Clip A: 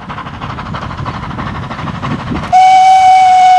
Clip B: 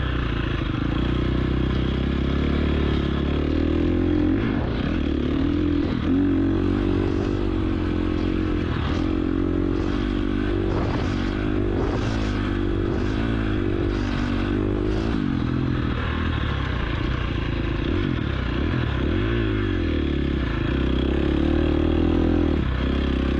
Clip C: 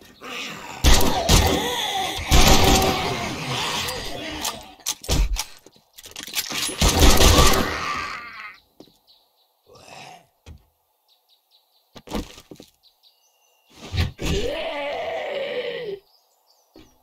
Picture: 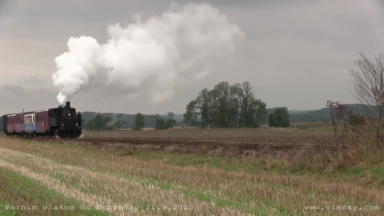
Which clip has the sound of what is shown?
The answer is A